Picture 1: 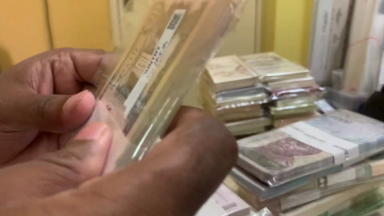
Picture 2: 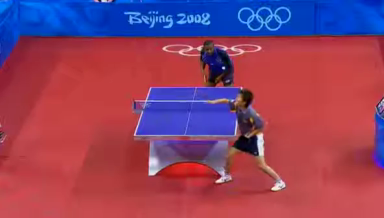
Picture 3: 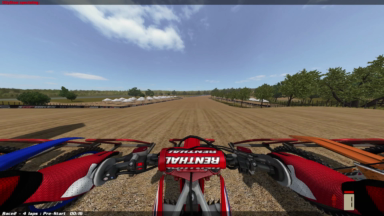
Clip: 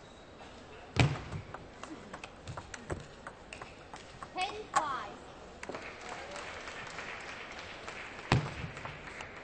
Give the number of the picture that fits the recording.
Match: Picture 2